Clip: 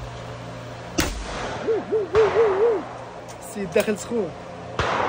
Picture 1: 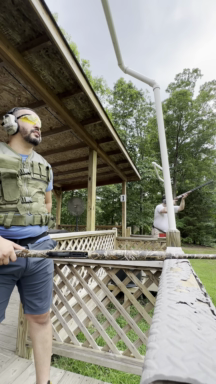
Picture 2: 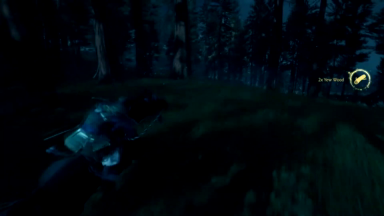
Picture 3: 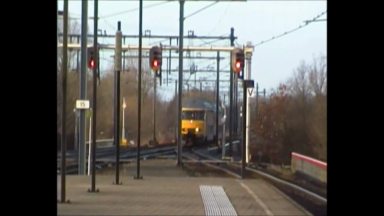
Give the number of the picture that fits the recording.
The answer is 1